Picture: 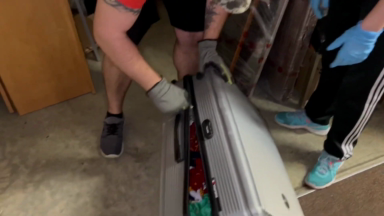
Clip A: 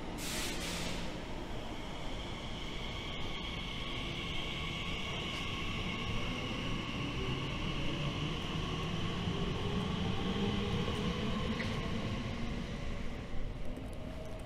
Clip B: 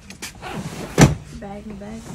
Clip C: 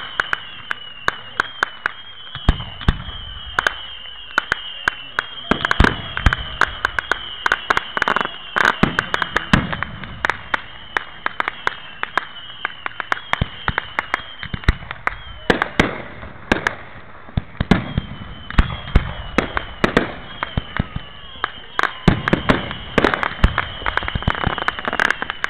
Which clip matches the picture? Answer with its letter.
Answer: B